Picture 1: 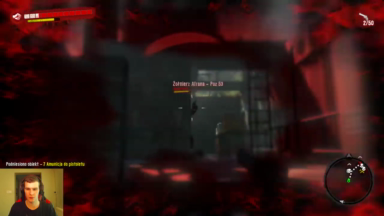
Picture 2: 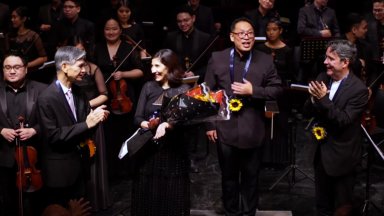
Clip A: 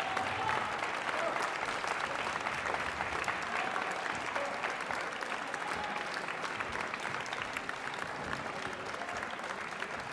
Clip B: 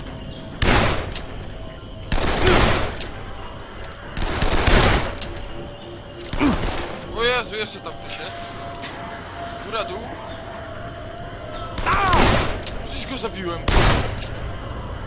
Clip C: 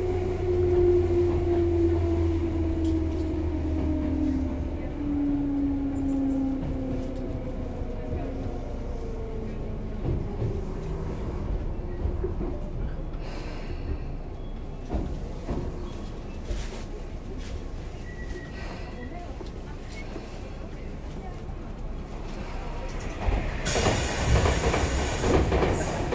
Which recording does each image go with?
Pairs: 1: B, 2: A